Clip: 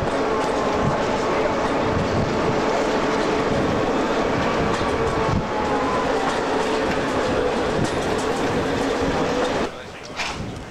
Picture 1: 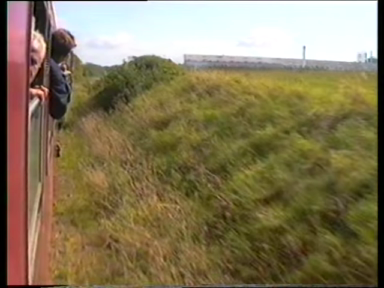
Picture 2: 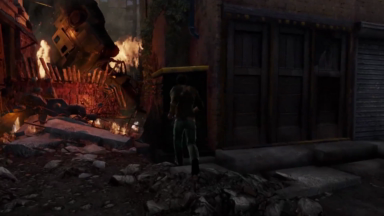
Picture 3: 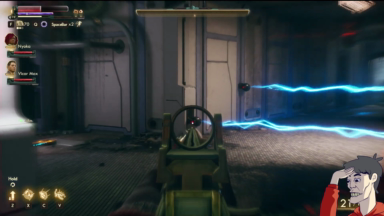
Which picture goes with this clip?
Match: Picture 1